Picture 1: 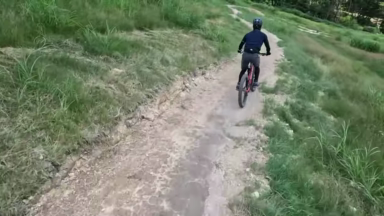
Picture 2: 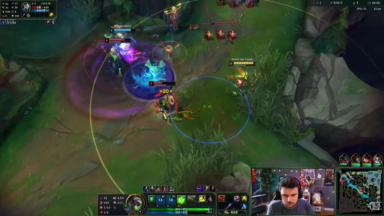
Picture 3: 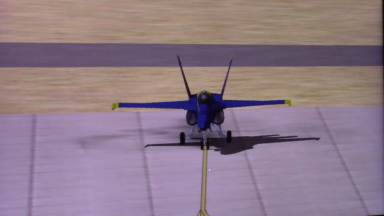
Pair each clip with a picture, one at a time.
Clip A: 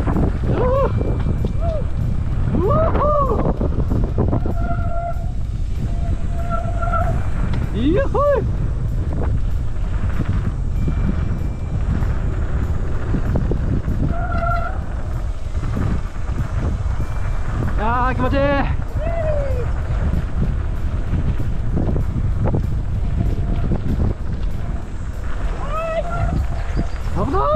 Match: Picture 1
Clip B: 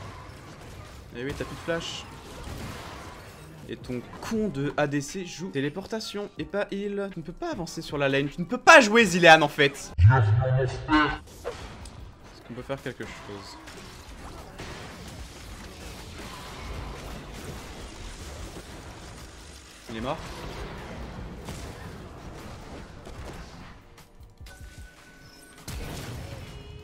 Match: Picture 2